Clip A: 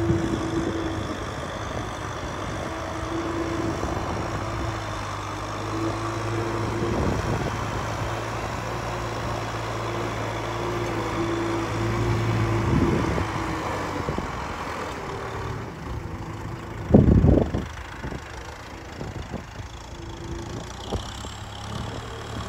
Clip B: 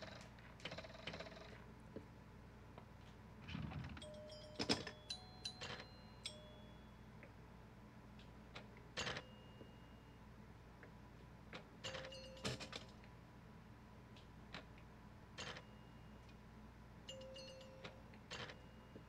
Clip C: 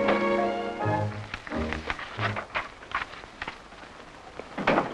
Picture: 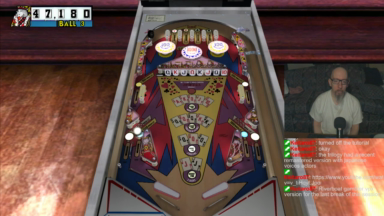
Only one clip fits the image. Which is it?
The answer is B